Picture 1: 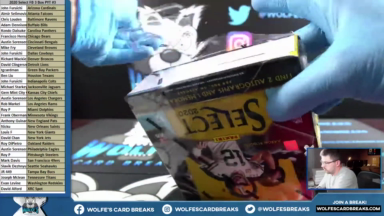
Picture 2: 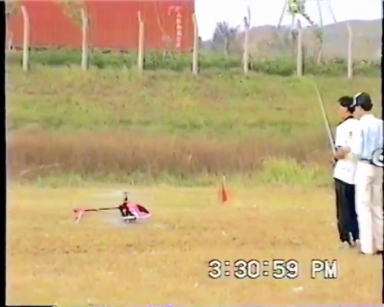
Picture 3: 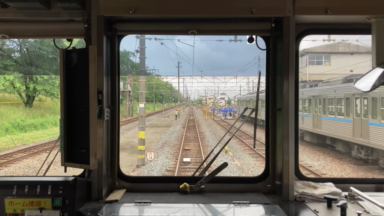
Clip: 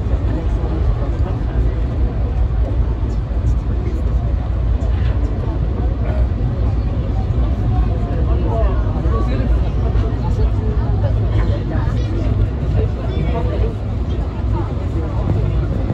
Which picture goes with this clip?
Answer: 3